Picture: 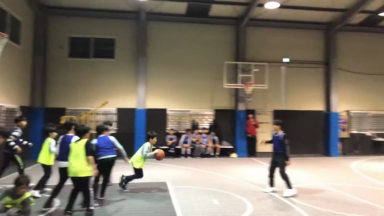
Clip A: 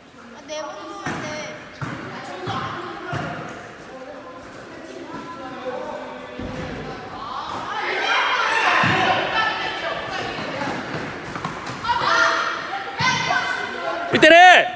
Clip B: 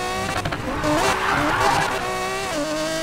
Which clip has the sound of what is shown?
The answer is A